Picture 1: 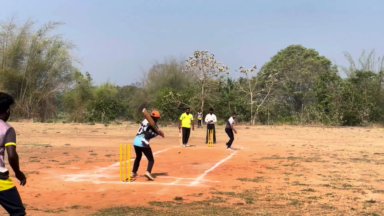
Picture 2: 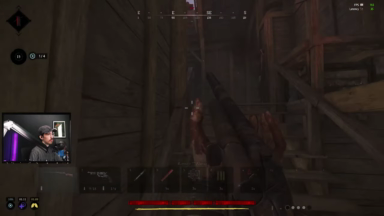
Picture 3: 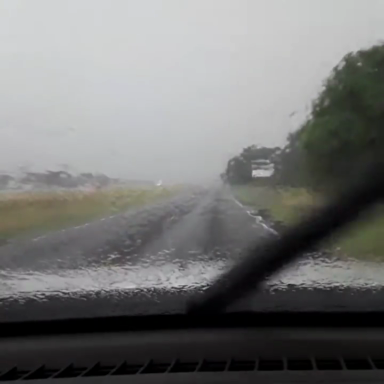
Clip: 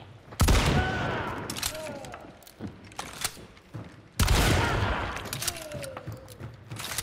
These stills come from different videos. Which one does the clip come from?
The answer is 2